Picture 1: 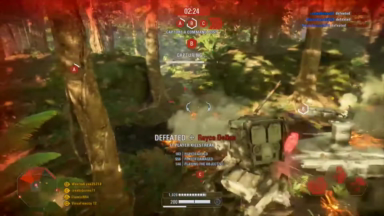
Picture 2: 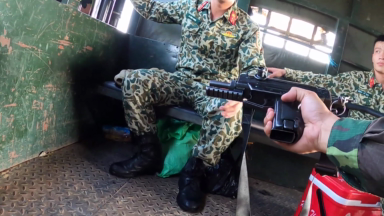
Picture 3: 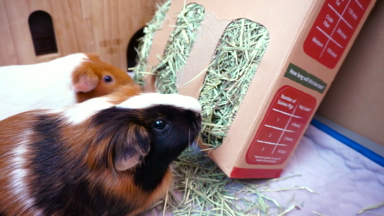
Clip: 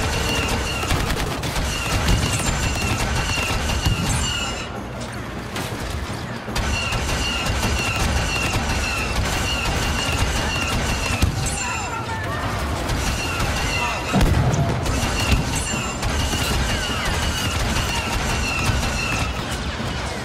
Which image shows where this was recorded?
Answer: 1